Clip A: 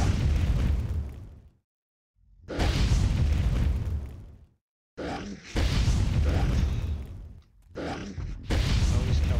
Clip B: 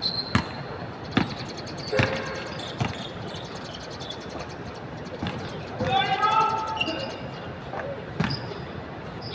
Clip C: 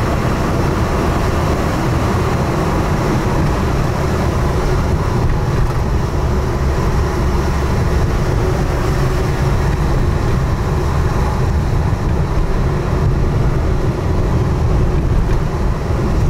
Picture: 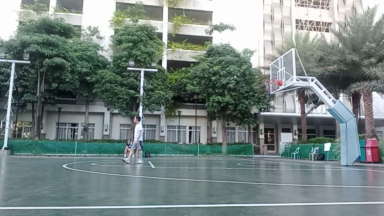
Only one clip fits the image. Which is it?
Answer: B